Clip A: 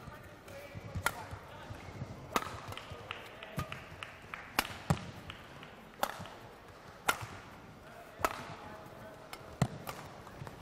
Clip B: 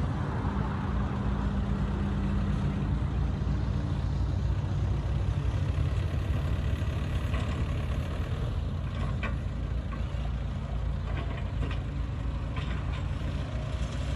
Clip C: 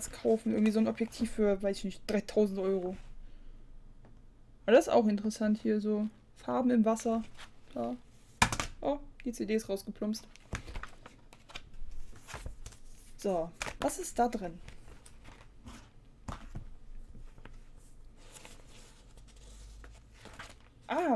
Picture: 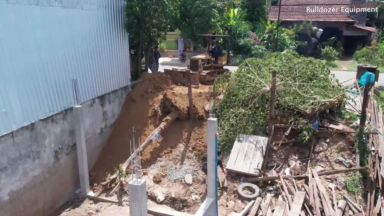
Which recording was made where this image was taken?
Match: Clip B